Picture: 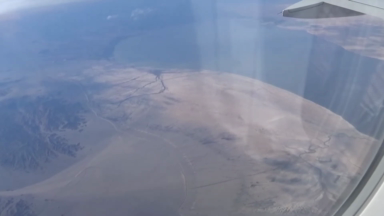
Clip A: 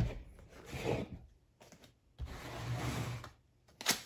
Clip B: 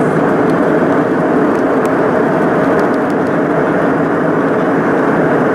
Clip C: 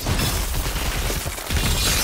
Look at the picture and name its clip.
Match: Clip B